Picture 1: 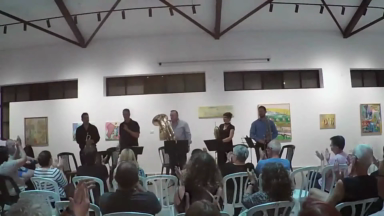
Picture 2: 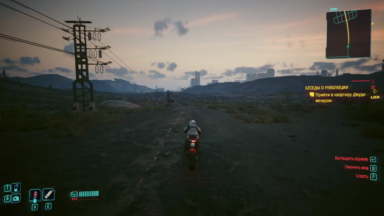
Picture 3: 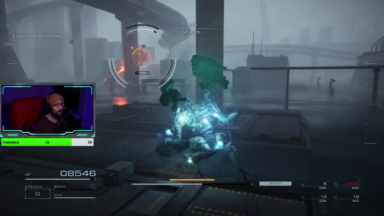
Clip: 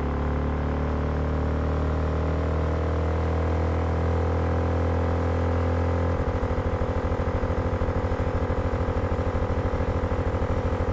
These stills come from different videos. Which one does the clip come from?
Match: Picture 2